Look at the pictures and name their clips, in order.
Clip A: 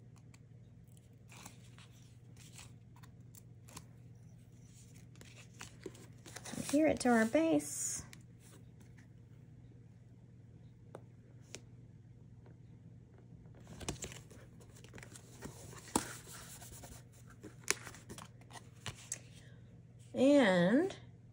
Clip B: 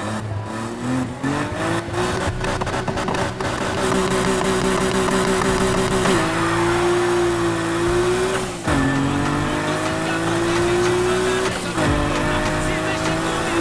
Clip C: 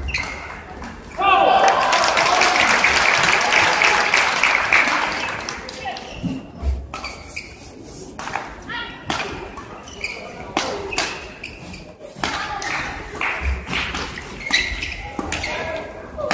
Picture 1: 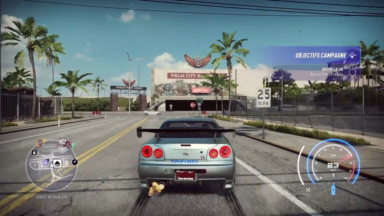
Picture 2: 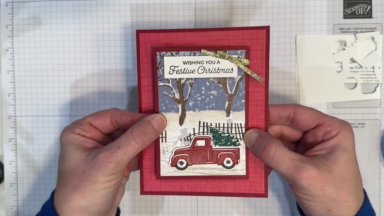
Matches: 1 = B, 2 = A